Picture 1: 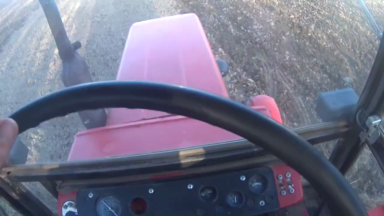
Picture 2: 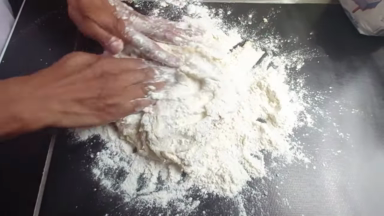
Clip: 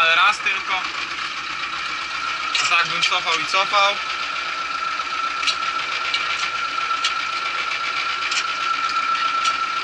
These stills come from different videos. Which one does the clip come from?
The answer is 1